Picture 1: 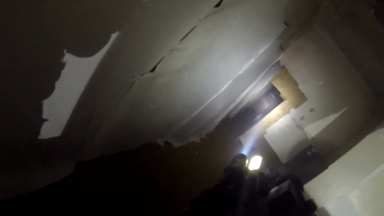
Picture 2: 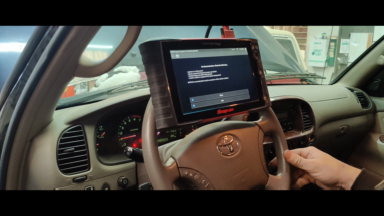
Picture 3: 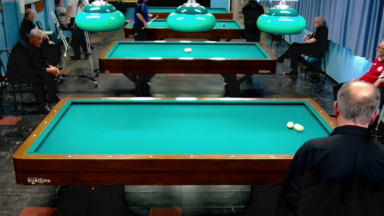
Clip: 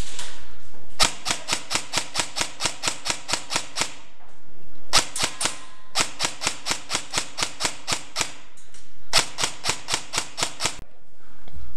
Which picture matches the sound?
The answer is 1